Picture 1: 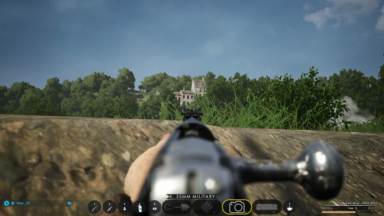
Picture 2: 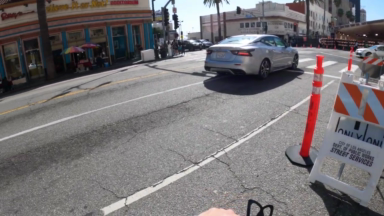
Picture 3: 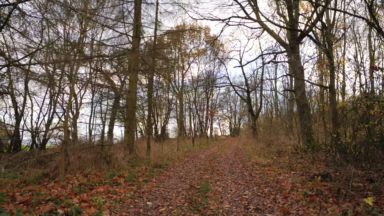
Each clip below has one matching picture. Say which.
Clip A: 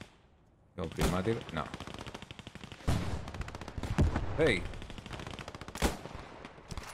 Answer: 1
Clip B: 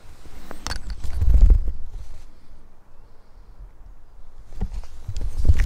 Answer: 3